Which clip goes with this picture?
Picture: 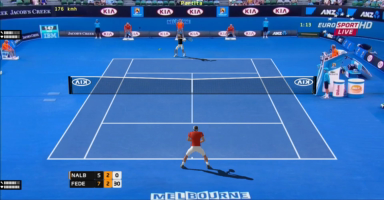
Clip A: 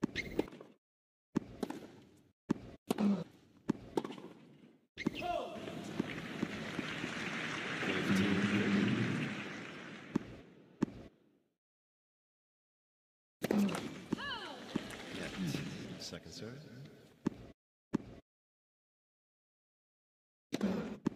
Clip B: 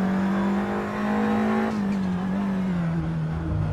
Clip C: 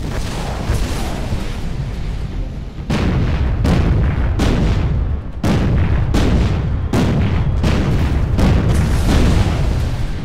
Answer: A